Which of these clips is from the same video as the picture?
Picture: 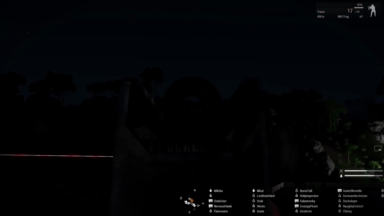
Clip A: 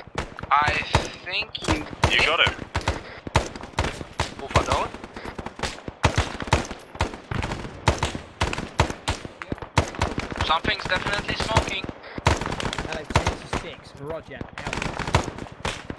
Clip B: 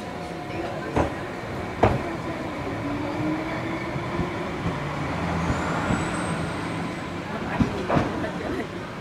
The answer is A